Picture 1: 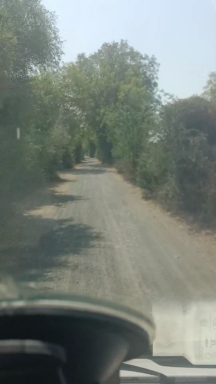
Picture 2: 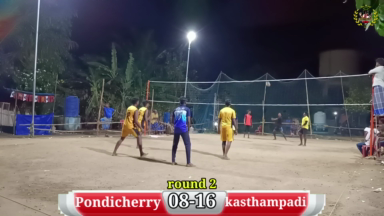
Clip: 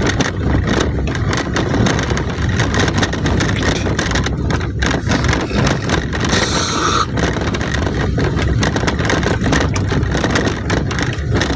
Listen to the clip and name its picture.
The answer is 1